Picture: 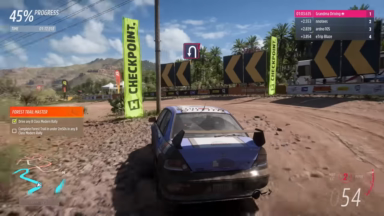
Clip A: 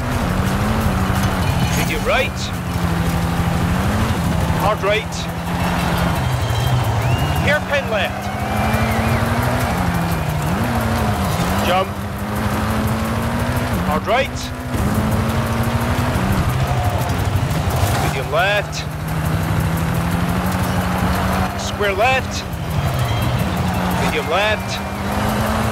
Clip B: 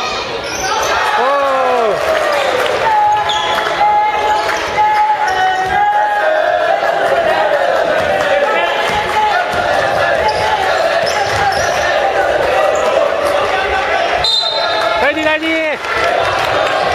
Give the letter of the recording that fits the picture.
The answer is A